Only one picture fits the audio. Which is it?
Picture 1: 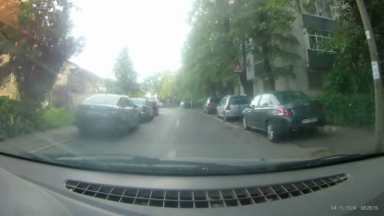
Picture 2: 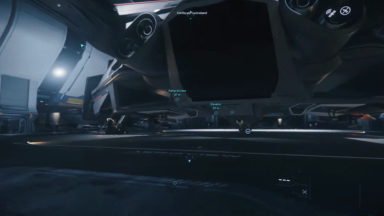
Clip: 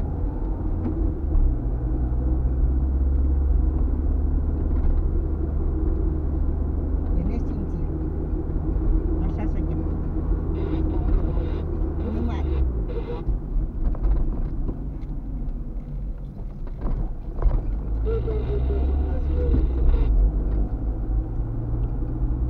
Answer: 1